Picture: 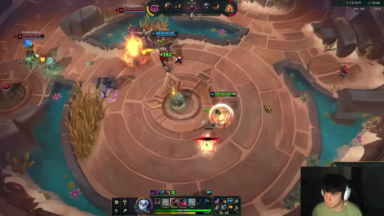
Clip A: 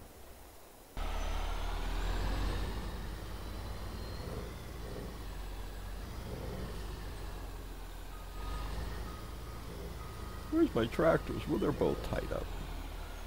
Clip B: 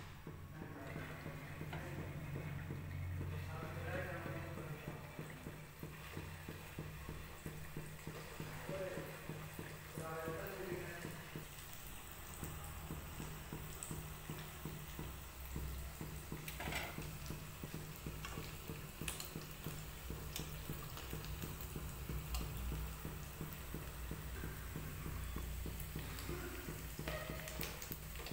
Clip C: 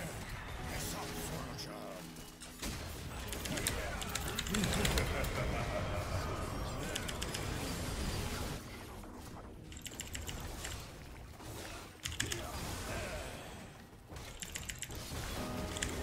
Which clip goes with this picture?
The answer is C